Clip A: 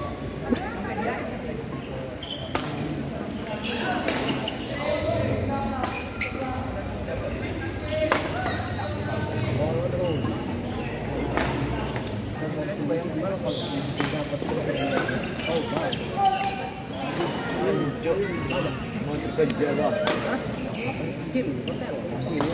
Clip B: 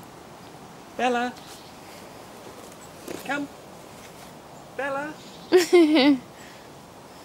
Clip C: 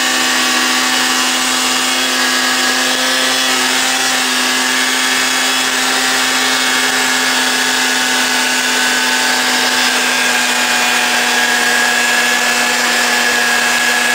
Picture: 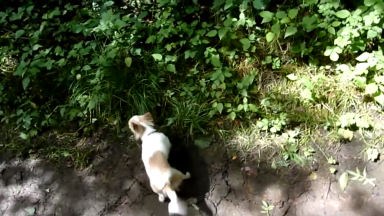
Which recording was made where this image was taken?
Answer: B